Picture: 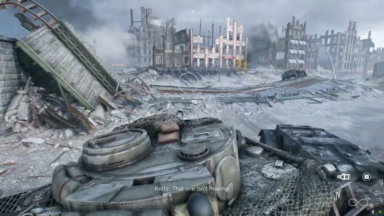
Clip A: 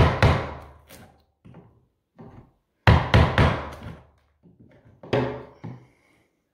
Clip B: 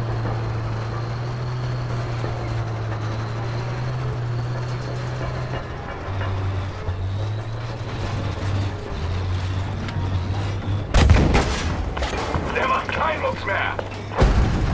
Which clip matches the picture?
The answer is B